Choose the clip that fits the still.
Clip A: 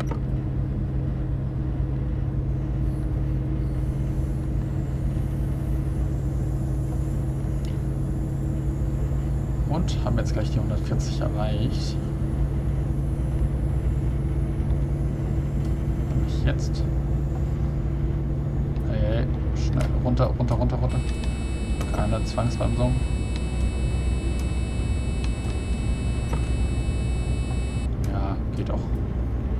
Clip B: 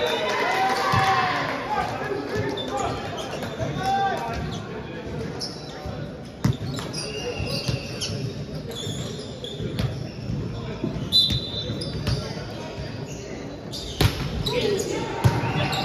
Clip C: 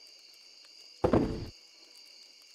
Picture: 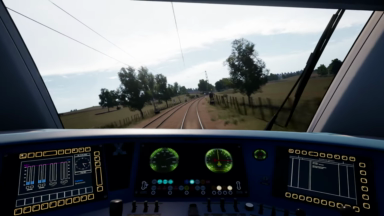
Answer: A